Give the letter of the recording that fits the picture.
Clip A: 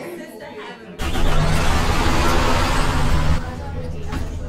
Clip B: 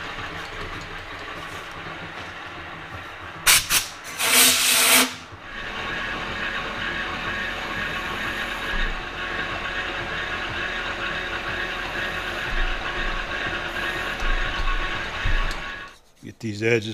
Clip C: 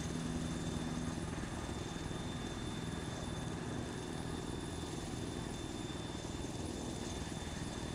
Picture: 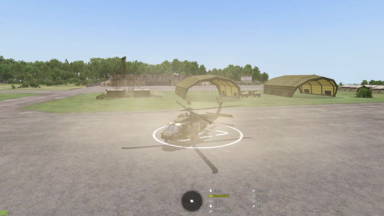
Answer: C